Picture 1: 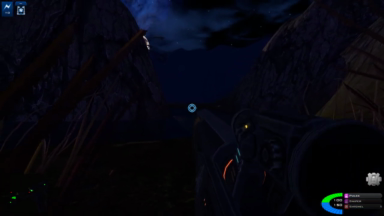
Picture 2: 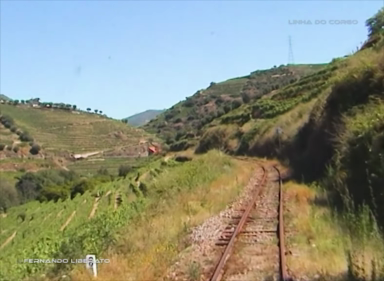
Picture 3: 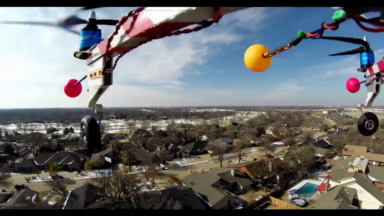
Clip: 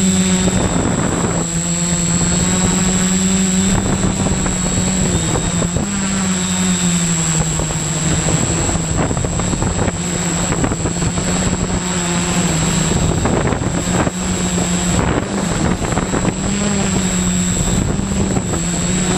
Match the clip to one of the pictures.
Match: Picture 3